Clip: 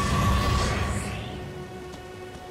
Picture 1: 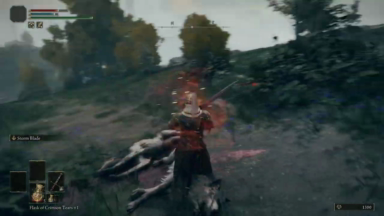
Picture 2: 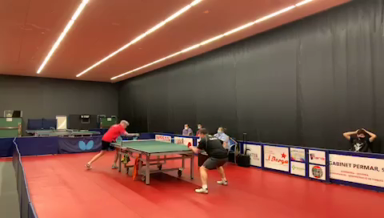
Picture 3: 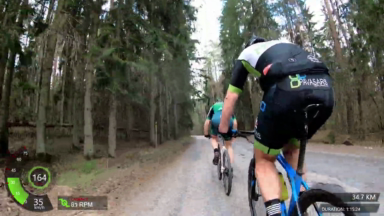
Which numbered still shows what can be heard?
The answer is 1